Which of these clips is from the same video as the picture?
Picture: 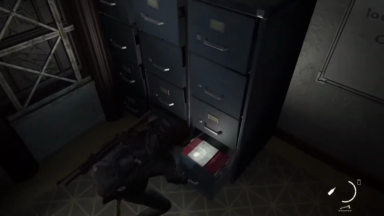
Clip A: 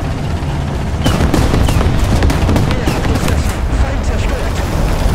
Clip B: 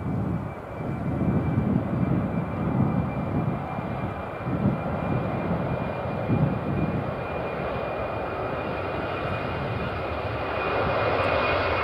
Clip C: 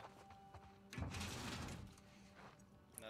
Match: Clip C